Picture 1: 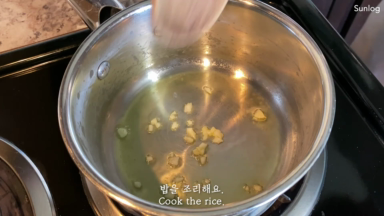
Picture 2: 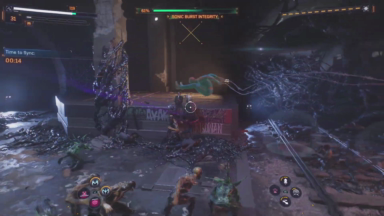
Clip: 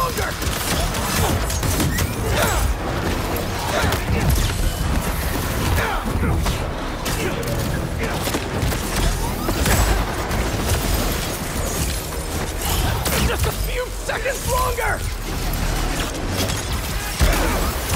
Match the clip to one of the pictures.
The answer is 2